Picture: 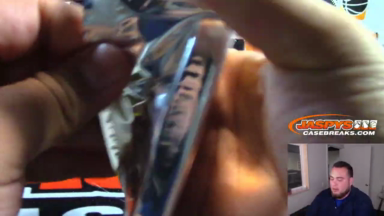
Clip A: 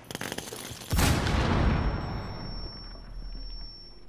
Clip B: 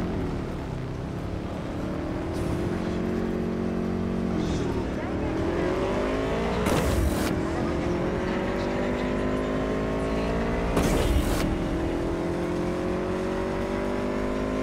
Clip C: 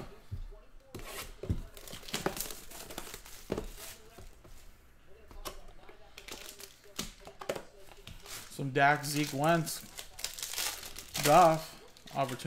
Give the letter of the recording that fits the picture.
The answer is C